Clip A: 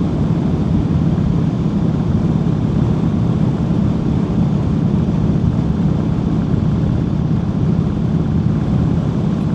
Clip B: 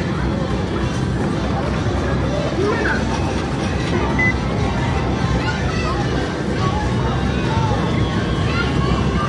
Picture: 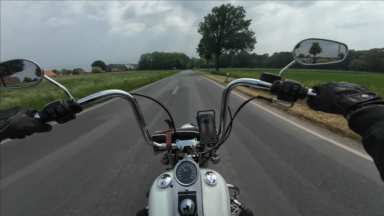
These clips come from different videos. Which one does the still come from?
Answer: A